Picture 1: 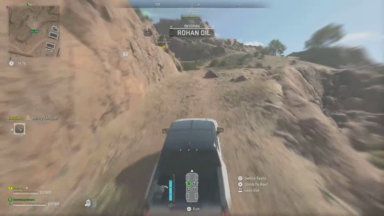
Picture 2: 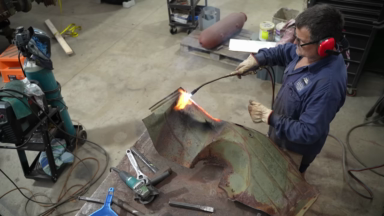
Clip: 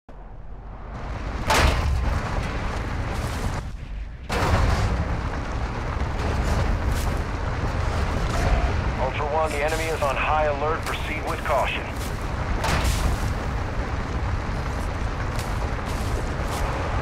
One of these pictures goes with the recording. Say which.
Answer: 1